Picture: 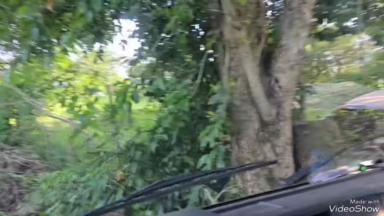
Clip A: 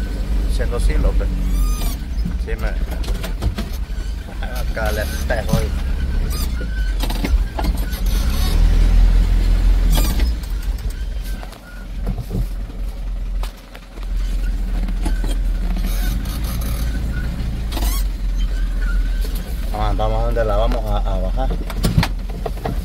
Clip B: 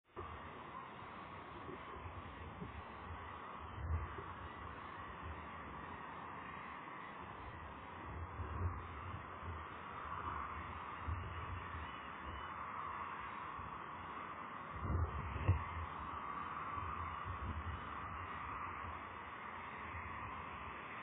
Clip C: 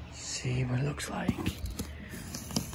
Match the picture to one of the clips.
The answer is A